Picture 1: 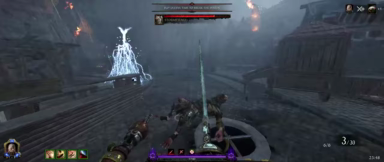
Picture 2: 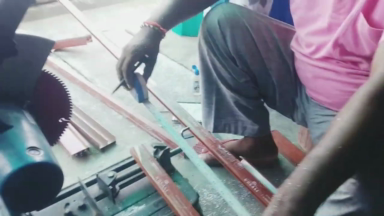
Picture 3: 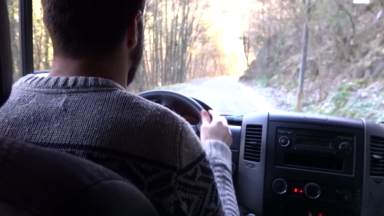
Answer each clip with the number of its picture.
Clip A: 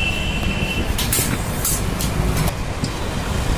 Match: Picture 2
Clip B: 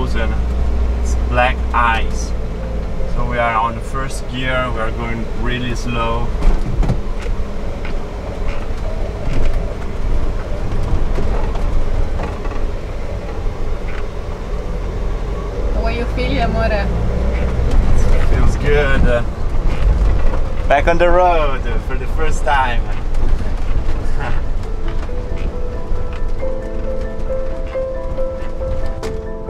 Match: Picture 3